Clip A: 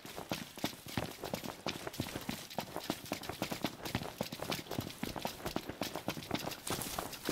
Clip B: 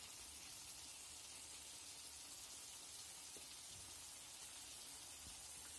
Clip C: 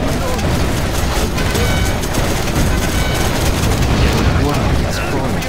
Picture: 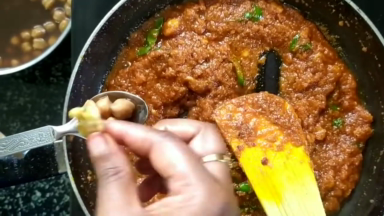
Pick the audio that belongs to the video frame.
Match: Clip B